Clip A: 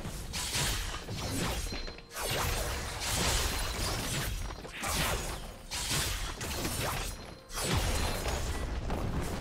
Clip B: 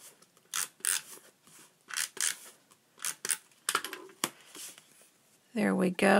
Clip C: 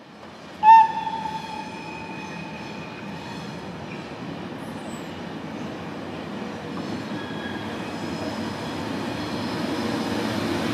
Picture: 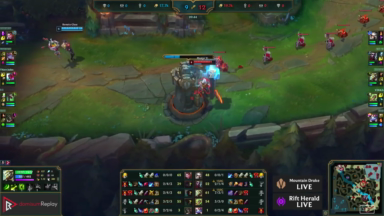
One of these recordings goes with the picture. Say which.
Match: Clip A